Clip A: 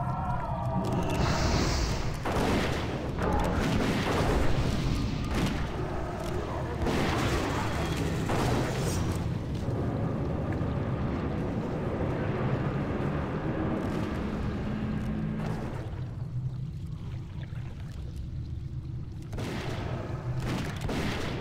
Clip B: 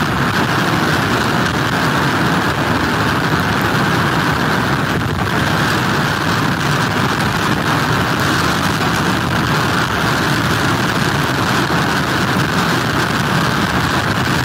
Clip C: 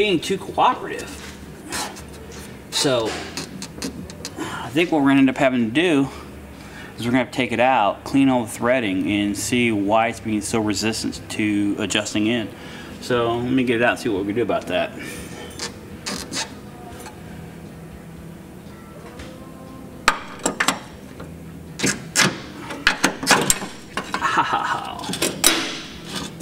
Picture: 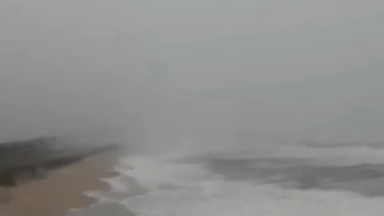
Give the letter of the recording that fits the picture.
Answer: B